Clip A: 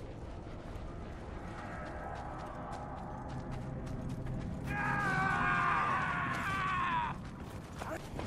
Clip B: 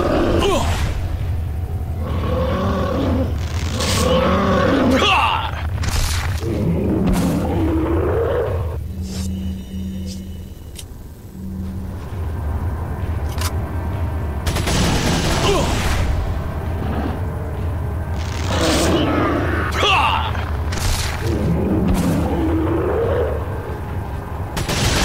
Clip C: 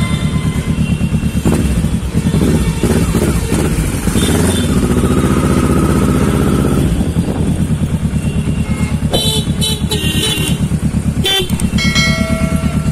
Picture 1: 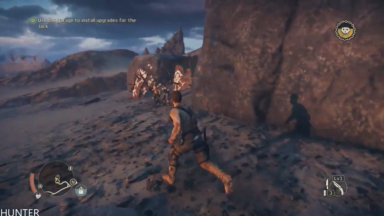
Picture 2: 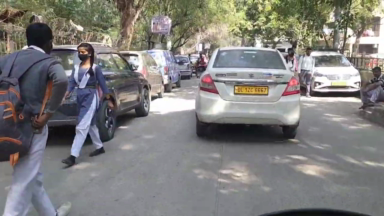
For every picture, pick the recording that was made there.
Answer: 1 A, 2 C